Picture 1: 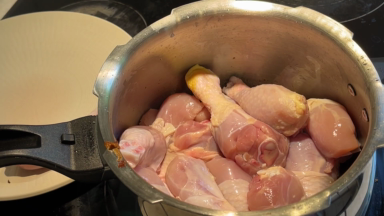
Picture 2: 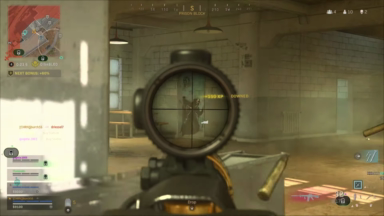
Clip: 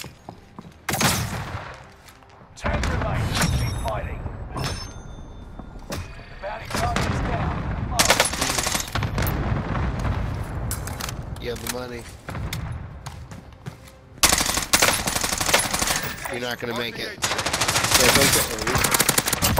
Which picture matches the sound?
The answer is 2